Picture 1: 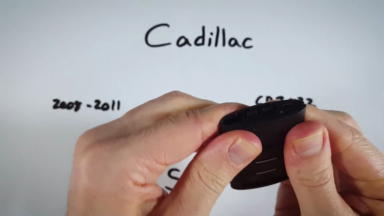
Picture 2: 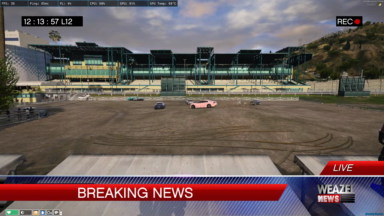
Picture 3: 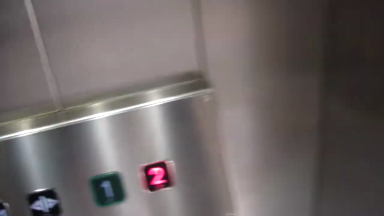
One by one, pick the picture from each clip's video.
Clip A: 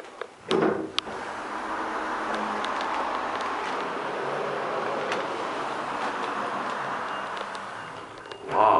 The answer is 3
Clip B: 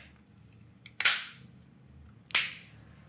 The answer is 1